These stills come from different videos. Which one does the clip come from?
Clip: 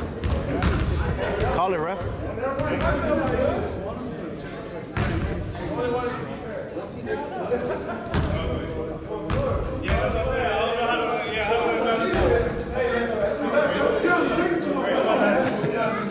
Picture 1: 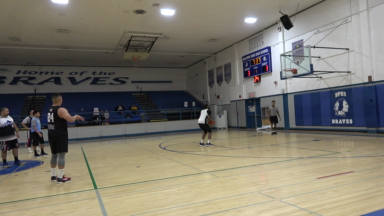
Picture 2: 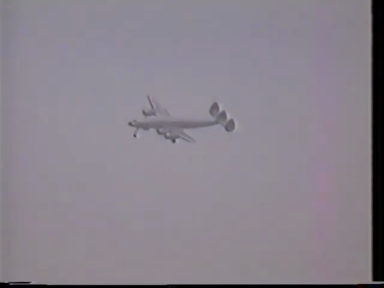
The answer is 1